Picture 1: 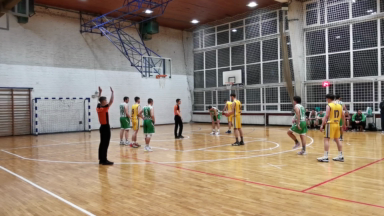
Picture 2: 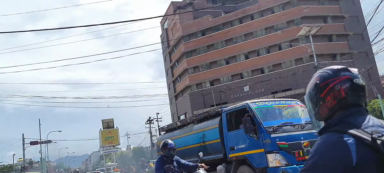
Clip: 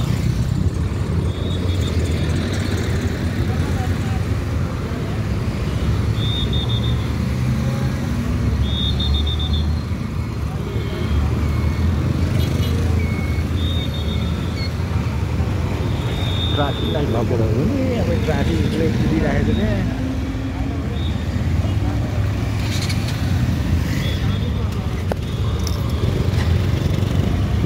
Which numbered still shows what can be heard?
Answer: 2